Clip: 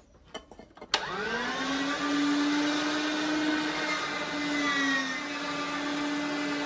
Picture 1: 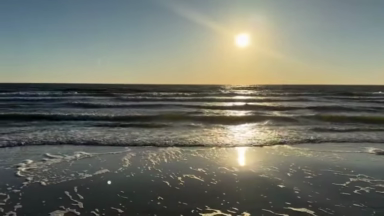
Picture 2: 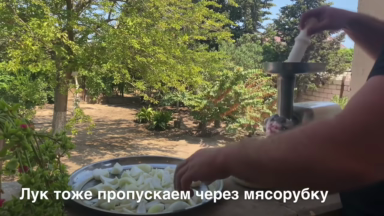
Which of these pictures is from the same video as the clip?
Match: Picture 2